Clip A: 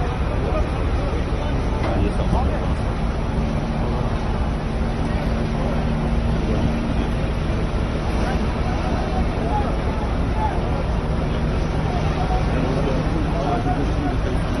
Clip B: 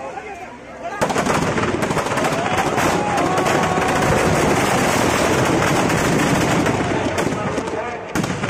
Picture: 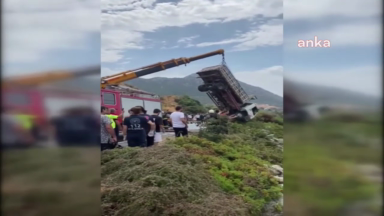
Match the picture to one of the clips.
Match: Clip A